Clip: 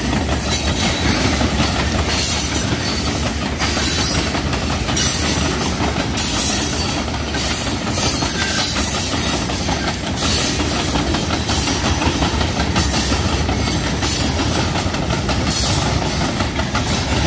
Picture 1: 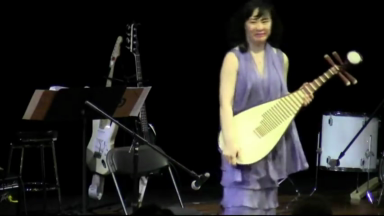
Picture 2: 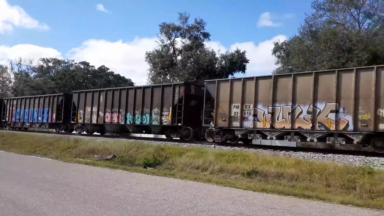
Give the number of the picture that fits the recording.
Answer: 2